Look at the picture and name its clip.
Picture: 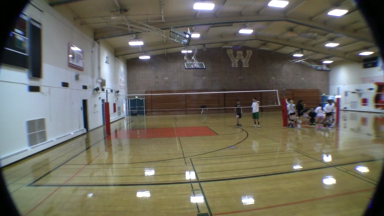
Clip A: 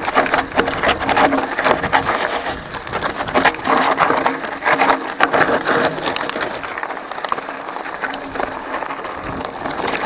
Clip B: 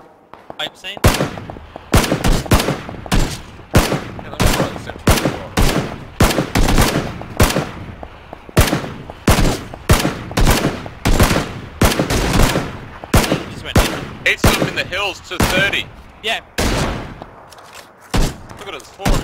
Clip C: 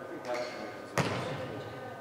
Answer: C